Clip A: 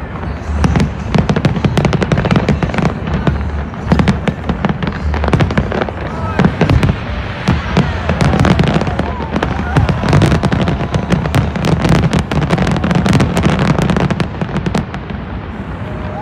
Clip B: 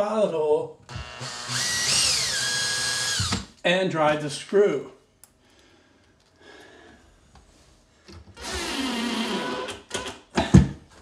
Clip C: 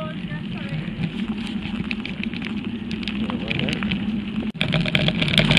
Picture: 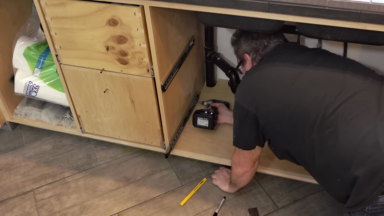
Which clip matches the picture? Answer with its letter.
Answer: B